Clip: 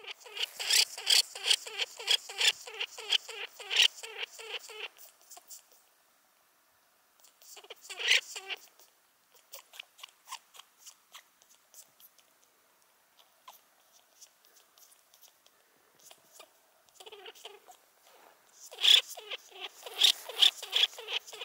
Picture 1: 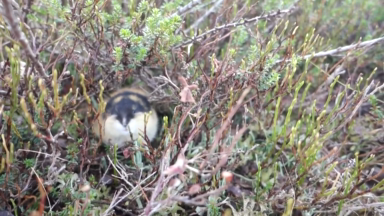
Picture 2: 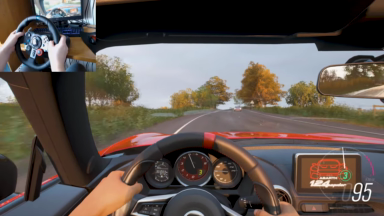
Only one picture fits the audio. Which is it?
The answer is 1